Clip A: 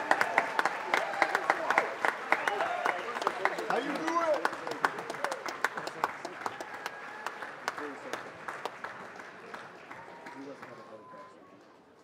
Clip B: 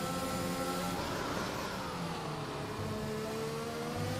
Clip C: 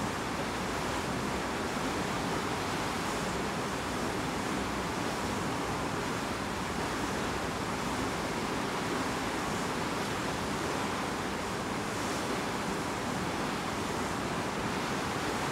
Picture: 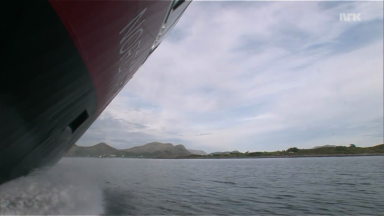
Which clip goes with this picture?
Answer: C